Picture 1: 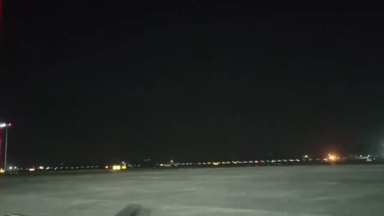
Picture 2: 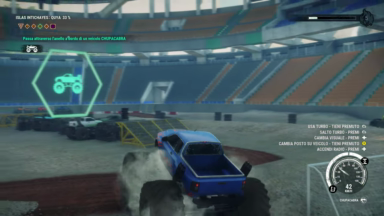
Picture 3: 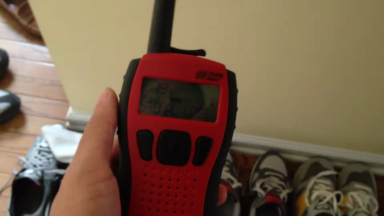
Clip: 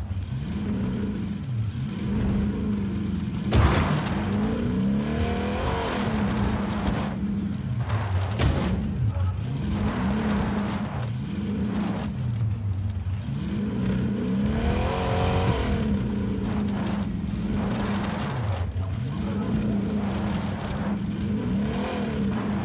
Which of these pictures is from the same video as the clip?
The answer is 2